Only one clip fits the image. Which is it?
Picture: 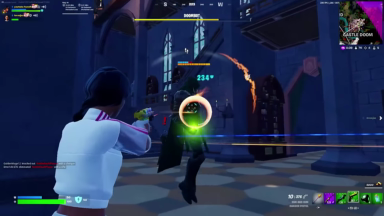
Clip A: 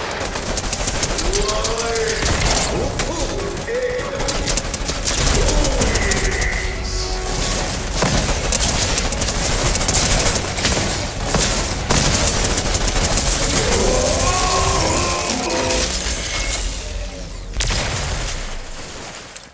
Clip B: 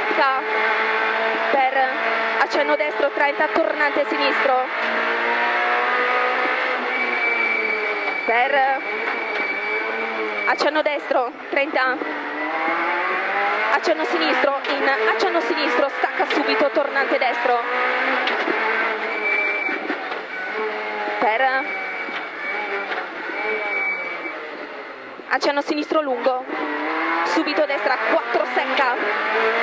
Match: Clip A